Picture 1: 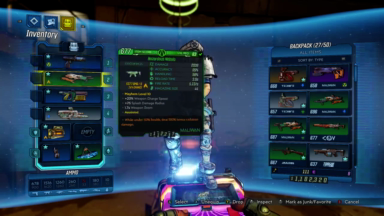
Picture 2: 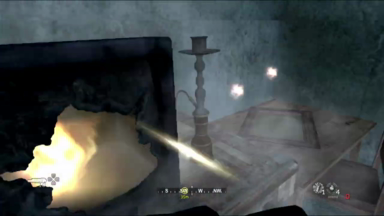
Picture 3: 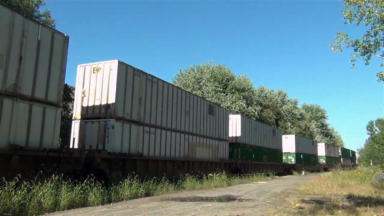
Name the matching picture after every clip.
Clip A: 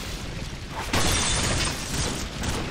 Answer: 2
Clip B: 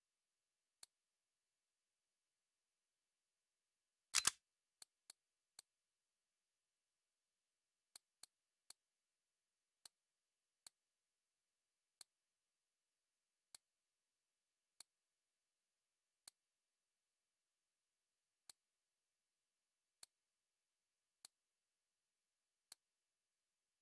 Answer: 1